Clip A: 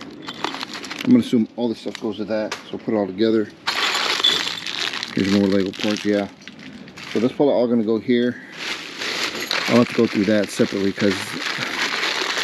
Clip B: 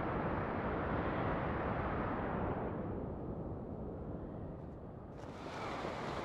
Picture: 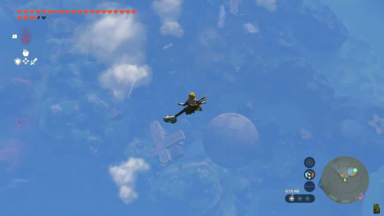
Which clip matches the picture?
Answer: B